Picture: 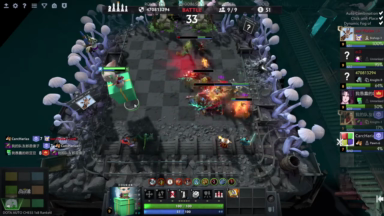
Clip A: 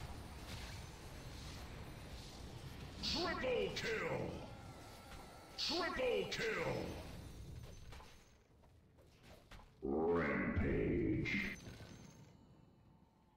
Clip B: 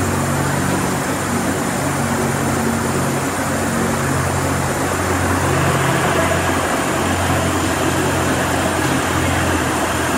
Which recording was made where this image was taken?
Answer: A